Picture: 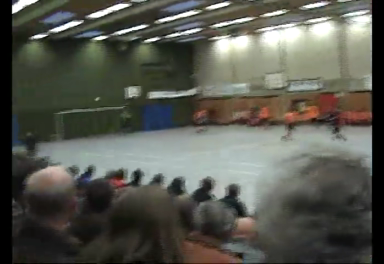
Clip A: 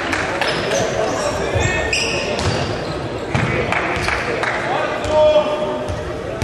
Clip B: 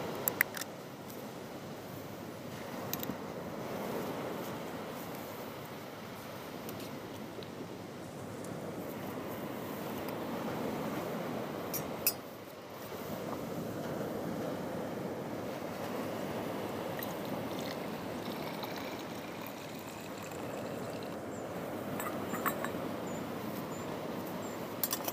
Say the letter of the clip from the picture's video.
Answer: A